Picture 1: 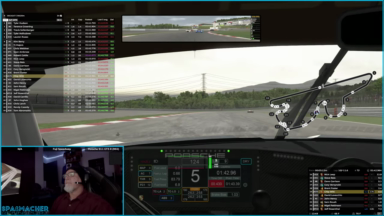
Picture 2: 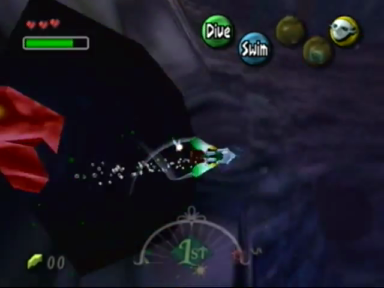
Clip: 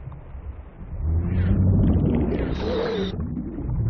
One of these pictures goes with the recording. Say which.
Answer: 2